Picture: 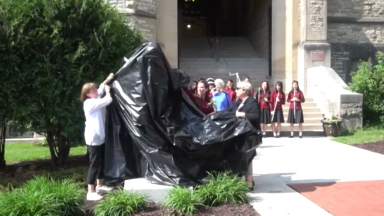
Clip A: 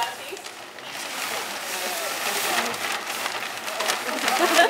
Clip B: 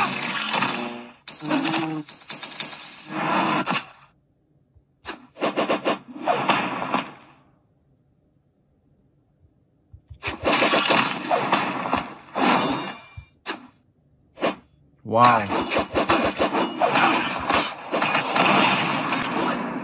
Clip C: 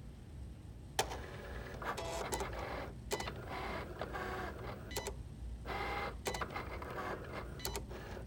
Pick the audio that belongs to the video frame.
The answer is A